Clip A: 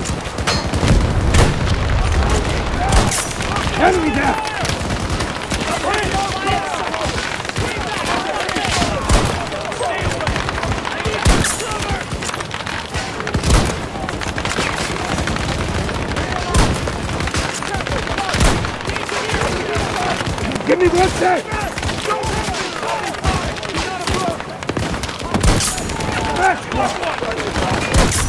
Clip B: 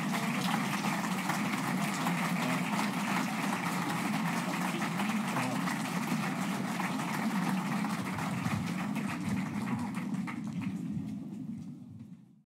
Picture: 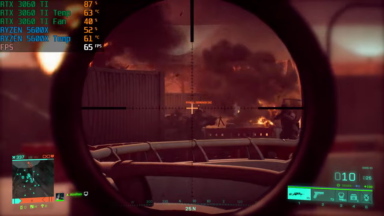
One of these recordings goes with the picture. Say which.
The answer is A